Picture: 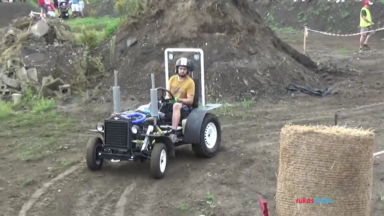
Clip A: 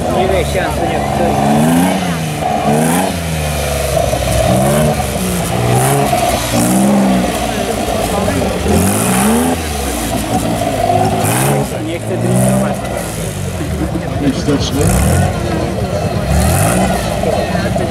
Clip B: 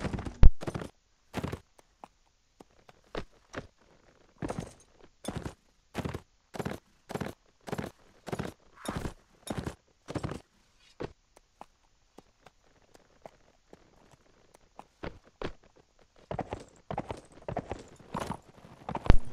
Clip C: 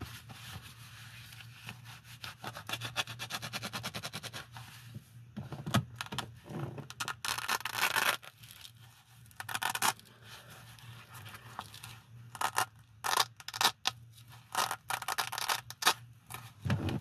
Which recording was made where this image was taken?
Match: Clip A